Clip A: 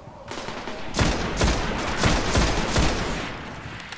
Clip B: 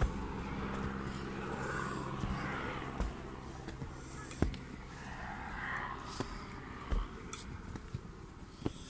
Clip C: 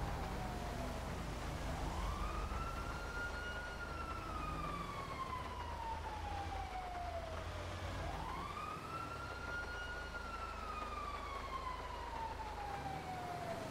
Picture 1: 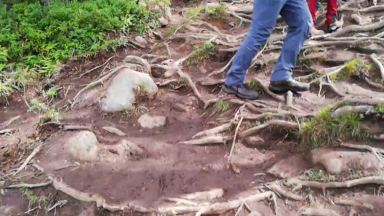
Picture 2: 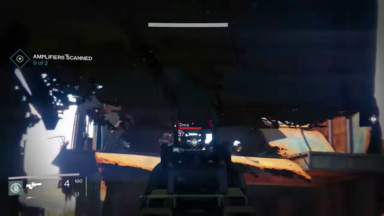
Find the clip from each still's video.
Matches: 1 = B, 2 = A